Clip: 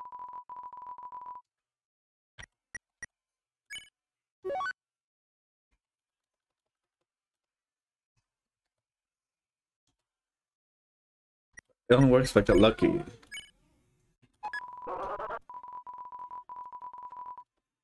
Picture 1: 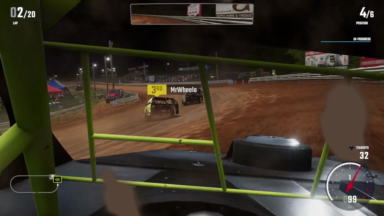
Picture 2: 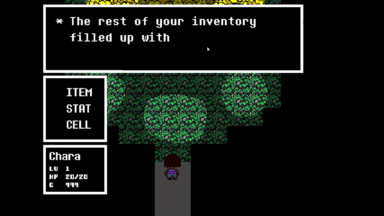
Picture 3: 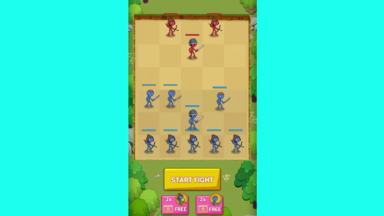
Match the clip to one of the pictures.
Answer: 2